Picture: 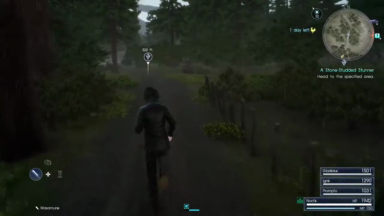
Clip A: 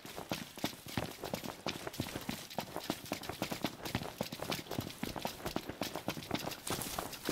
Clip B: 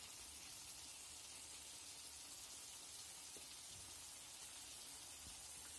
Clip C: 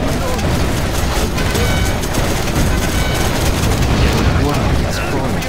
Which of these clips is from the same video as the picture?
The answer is A